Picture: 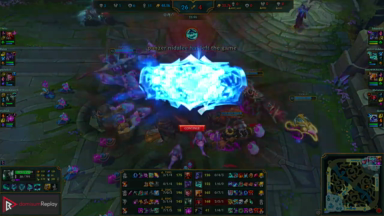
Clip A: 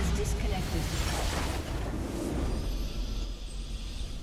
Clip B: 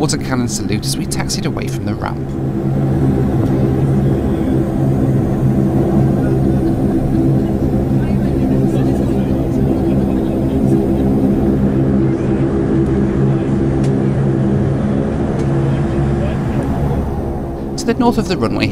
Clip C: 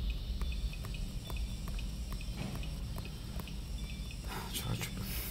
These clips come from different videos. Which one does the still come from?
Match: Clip A